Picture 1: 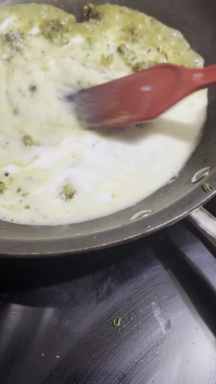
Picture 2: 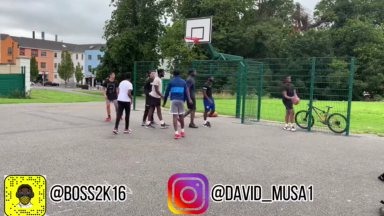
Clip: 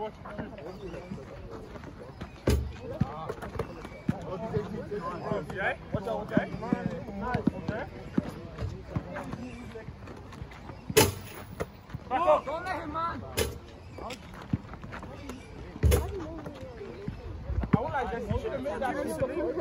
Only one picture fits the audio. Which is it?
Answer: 2